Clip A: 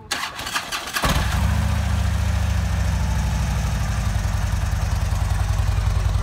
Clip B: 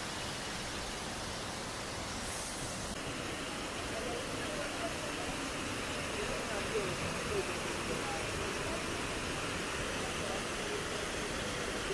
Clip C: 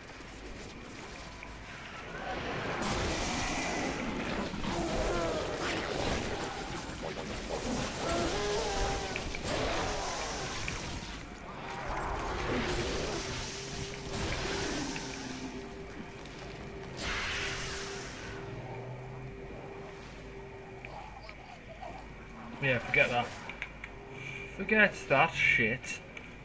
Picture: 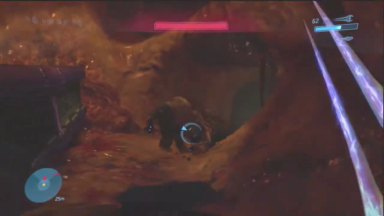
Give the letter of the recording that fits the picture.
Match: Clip C